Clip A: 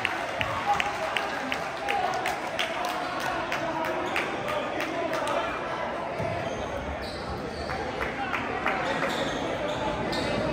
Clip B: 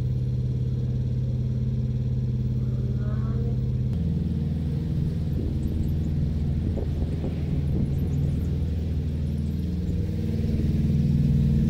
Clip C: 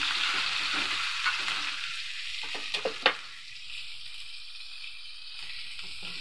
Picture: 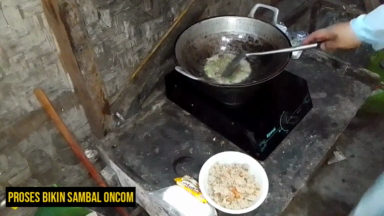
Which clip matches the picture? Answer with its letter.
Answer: C